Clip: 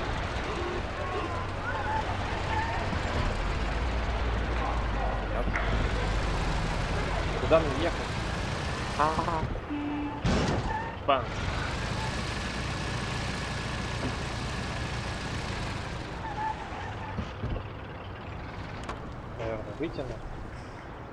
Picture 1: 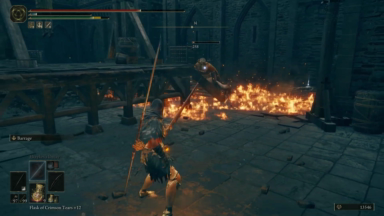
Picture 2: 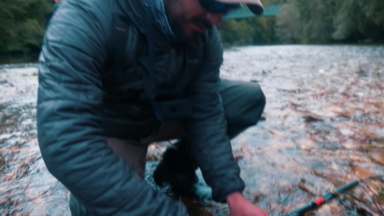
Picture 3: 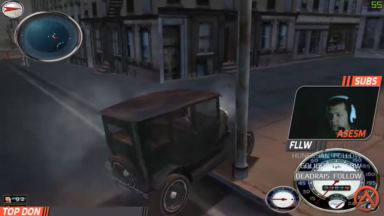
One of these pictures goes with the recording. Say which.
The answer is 3